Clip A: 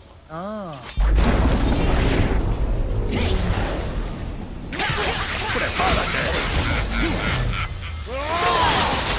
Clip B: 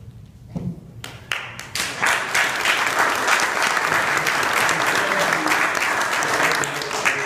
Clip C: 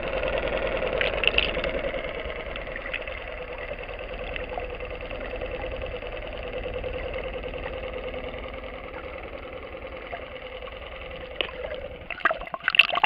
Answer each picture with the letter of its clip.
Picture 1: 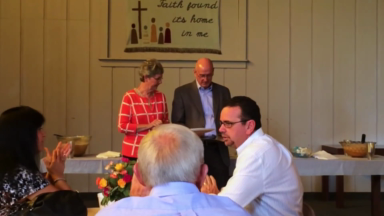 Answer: B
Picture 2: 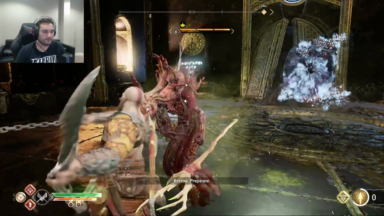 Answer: A